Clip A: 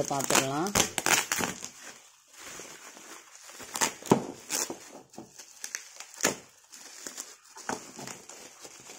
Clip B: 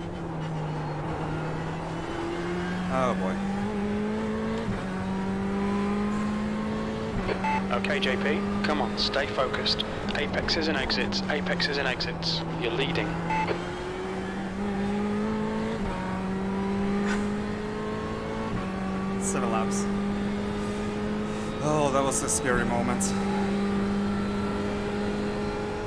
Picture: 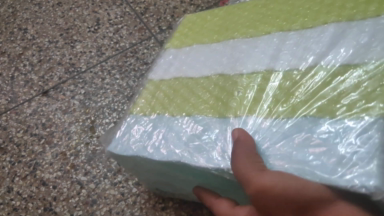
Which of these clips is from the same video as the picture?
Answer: A